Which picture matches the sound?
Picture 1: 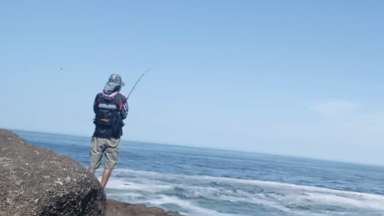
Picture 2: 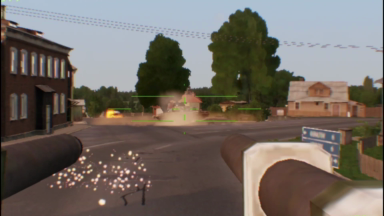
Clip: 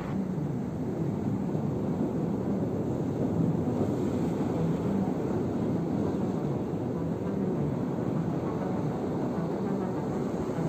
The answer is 1